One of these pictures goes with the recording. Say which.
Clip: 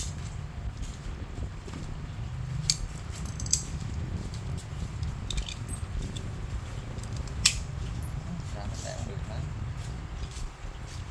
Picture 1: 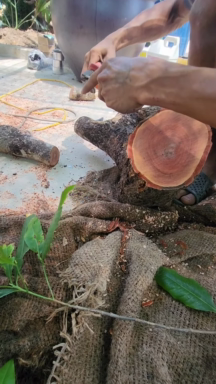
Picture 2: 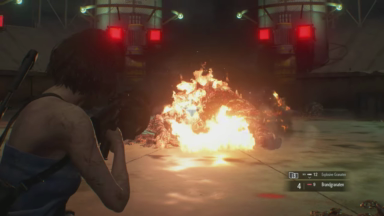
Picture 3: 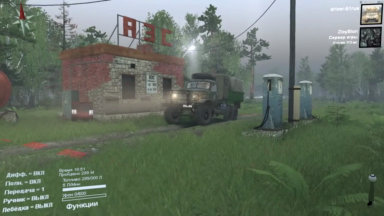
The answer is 1